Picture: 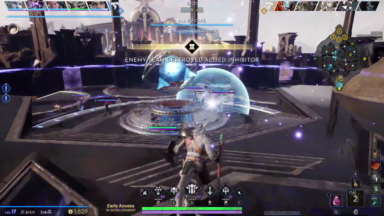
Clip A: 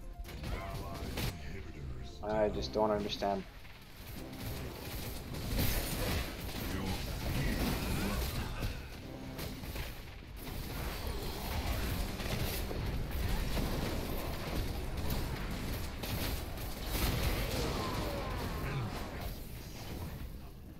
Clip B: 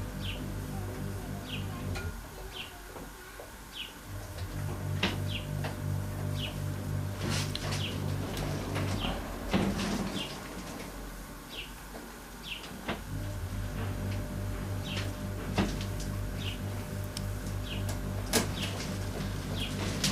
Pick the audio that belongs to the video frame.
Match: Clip A